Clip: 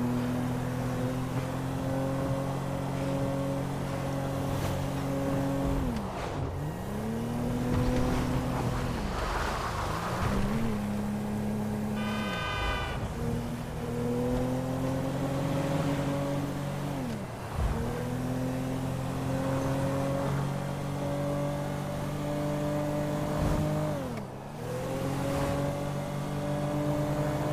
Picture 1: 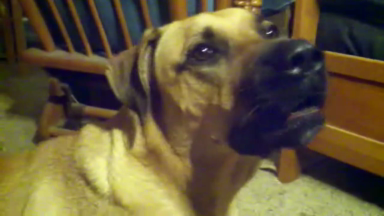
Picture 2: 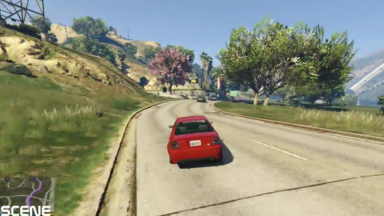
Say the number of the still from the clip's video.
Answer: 2